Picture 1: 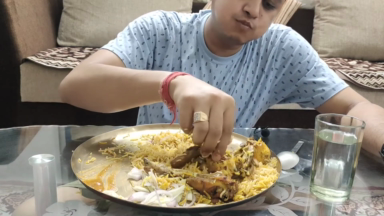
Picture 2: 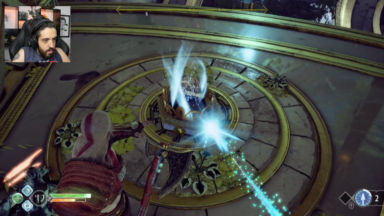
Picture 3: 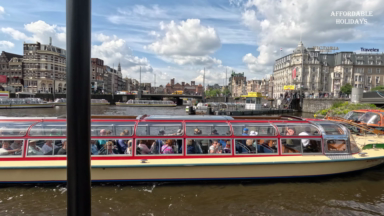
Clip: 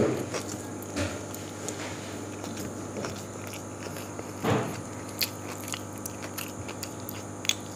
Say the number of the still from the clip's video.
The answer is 1